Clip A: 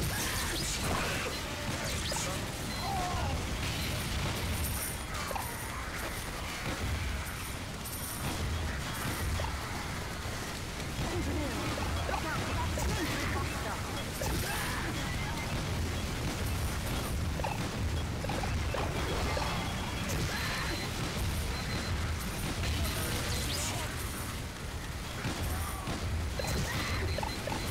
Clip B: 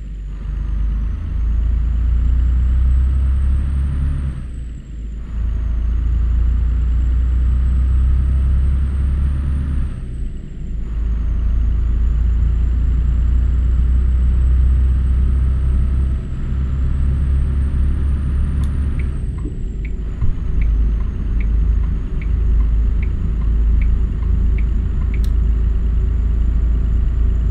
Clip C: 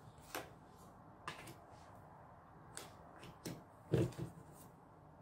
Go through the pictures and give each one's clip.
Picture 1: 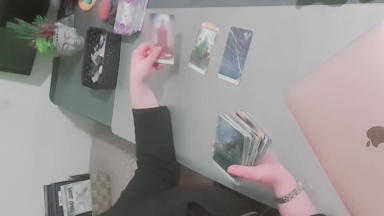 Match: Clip C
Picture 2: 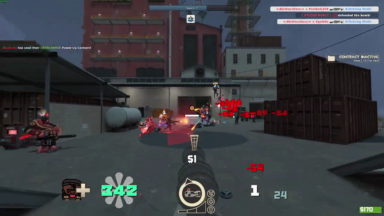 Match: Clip A